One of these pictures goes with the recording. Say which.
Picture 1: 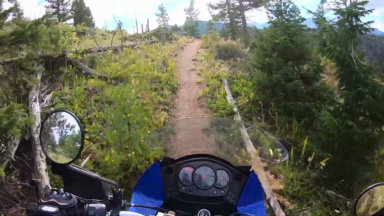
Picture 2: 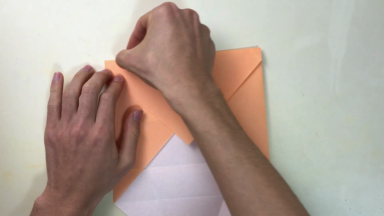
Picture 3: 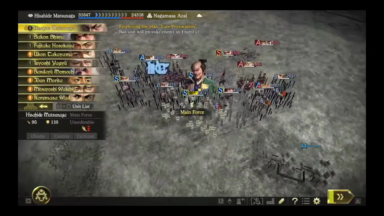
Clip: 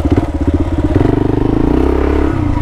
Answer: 1